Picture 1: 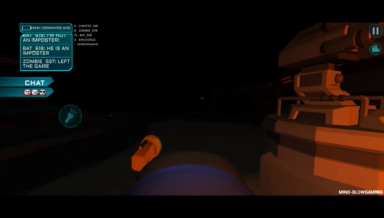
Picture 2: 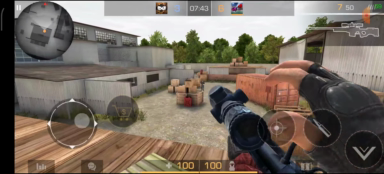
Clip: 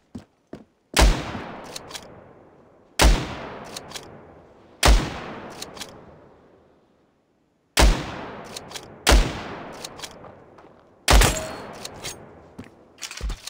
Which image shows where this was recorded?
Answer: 2